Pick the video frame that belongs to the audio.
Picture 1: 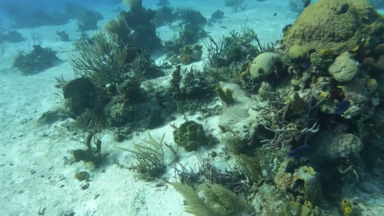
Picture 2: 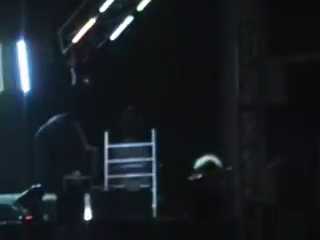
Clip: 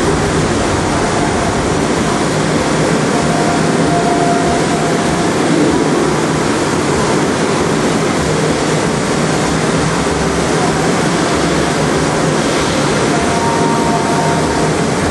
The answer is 2